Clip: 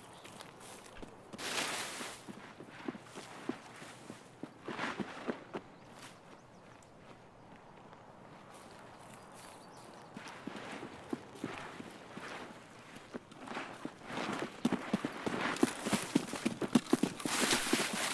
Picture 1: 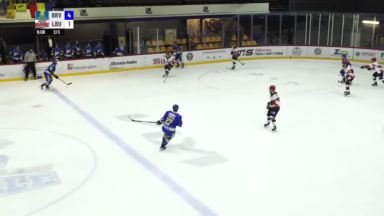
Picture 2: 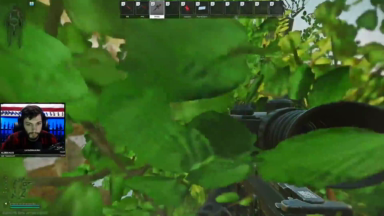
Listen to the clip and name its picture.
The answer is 2